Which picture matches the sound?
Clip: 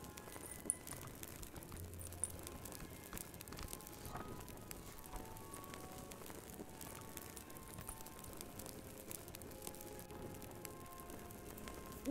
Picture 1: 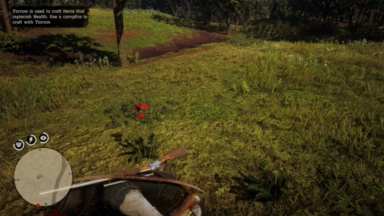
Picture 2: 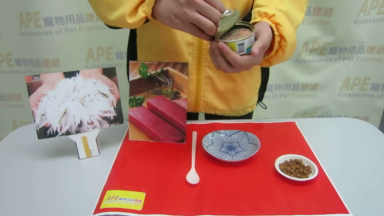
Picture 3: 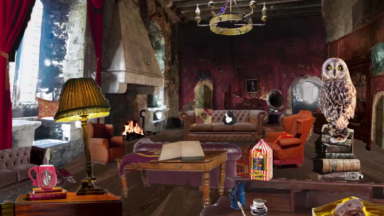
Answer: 3